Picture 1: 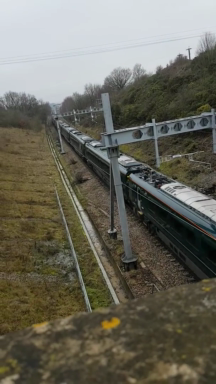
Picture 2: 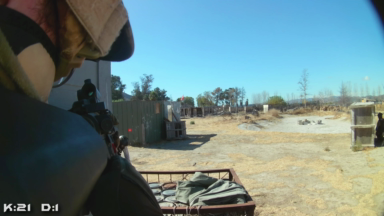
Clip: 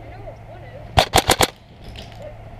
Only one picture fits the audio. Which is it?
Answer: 2